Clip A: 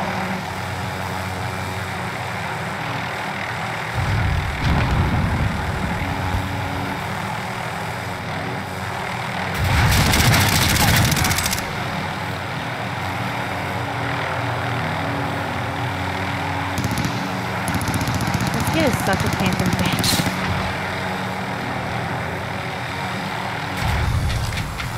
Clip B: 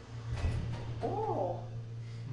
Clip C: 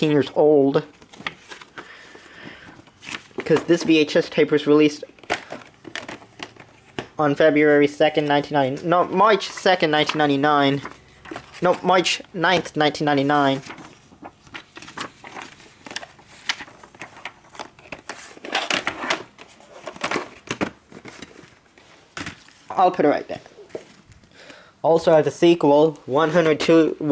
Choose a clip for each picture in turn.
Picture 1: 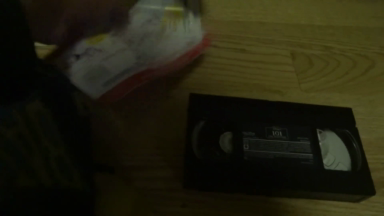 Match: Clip C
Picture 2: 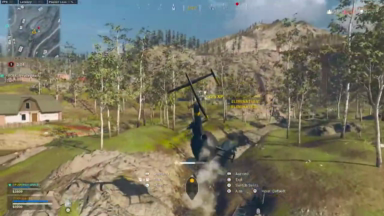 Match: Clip A